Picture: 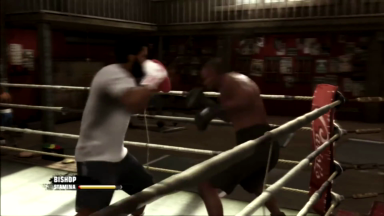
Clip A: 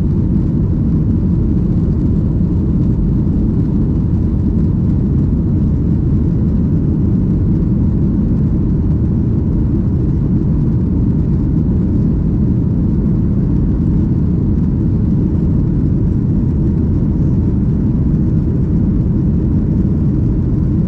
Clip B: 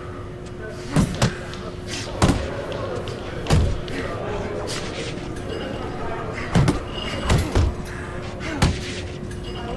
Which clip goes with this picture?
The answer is B